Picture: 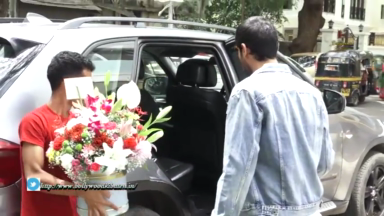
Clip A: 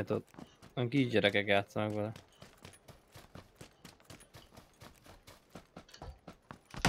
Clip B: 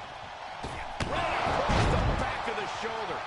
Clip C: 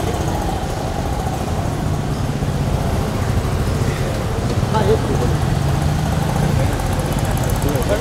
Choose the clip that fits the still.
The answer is C